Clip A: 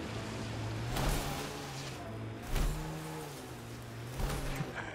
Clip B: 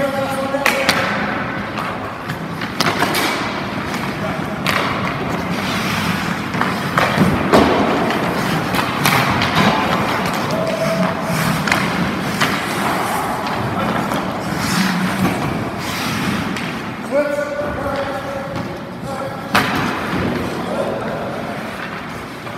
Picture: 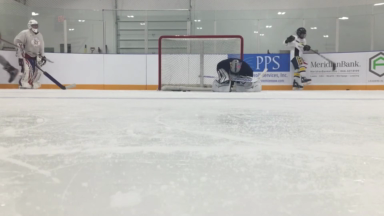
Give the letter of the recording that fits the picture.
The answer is B